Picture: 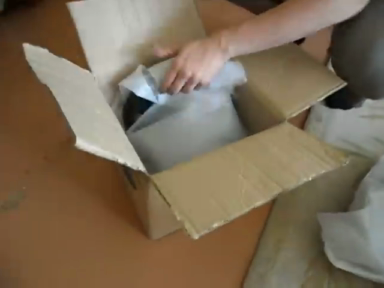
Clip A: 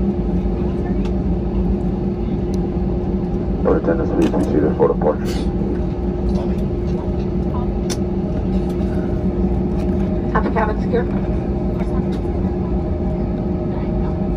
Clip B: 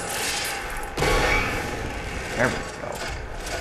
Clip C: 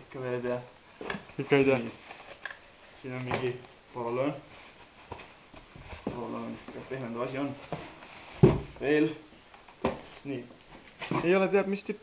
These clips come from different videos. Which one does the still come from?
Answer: C